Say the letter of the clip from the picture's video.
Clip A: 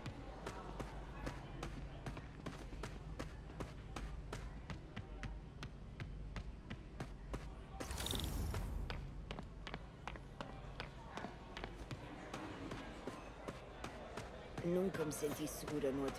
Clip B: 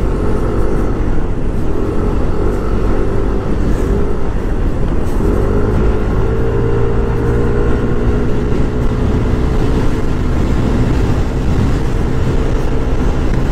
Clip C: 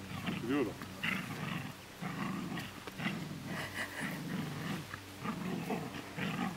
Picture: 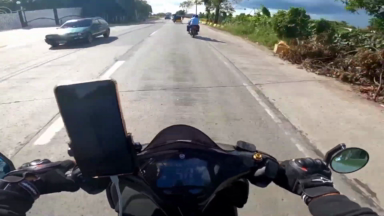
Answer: B